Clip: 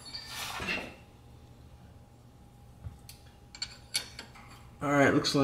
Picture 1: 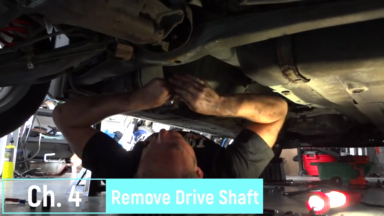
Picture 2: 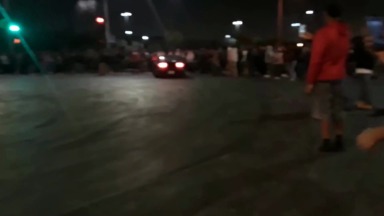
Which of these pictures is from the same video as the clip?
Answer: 1